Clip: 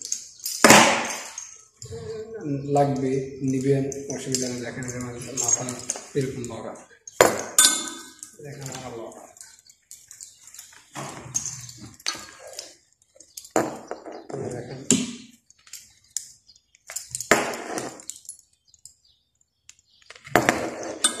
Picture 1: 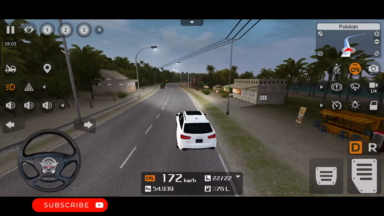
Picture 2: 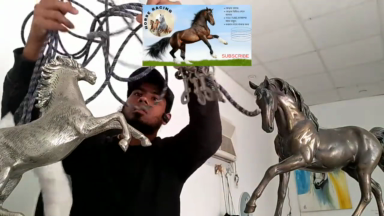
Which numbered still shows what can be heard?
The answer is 2